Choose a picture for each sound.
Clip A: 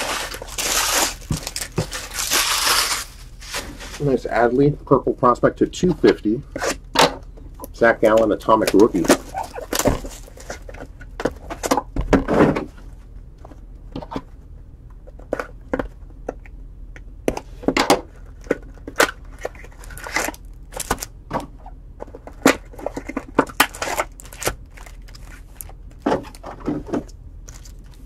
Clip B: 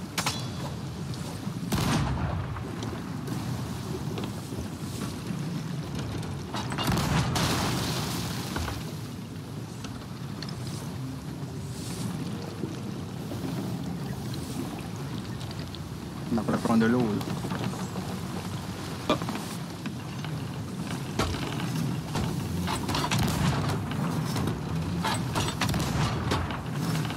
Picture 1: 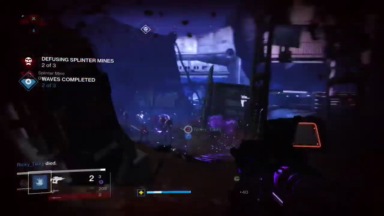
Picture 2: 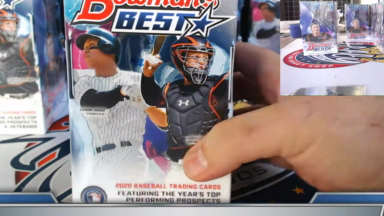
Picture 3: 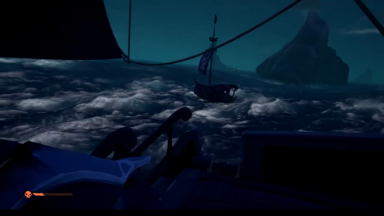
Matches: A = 2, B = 3